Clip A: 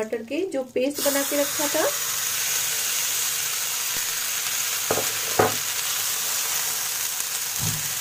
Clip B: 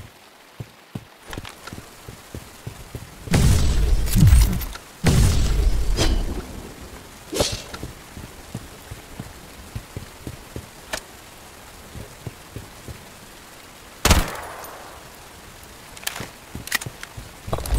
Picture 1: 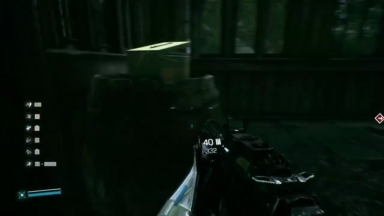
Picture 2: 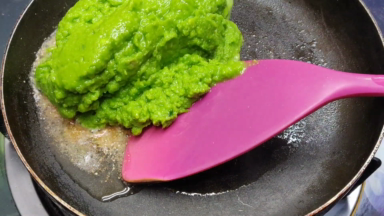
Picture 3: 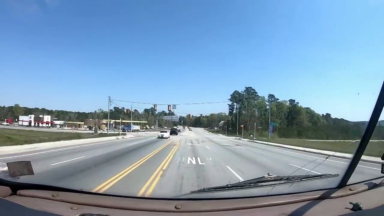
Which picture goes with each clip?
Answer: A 2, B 1